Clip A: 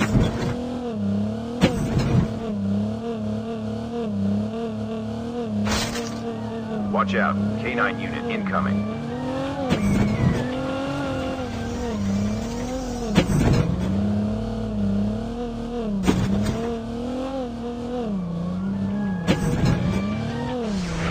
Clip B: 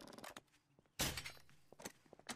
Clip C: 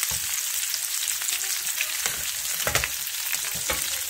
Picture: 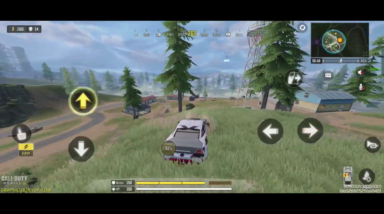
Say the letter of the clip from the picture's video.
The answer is A